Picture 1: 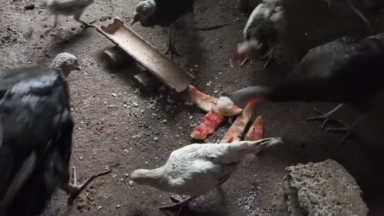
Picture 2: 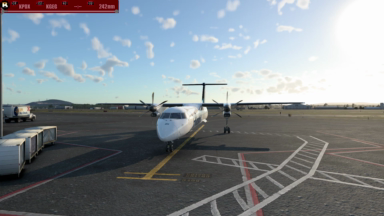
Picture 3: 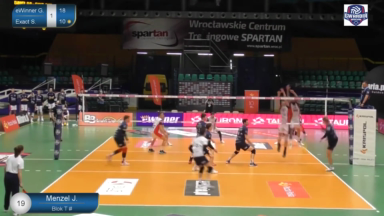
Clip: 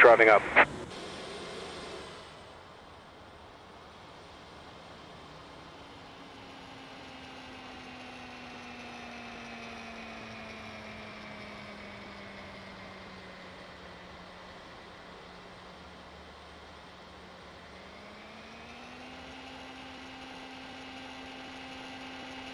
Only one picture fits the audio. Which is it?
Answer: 2